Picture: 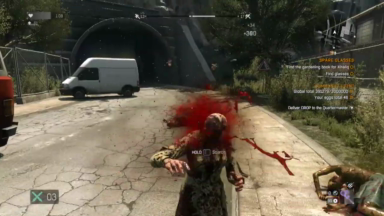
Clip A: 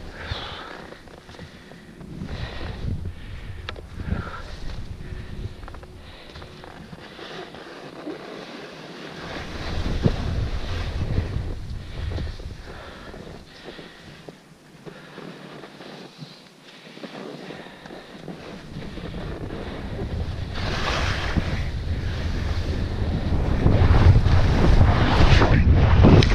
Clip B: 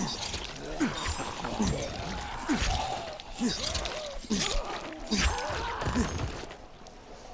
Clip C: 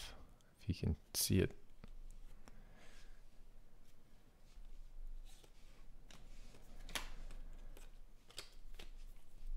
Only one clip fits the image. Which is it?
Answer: B